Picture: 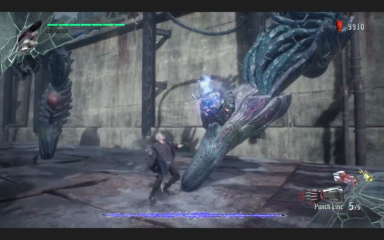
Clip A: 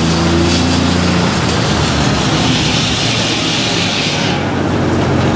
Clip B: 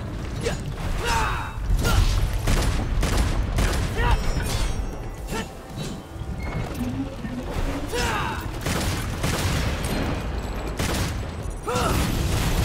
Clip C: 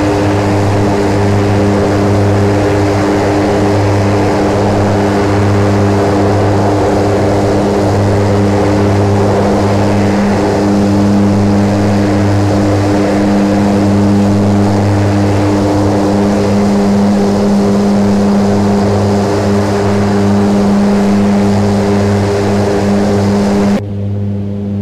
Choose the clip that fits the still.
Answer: B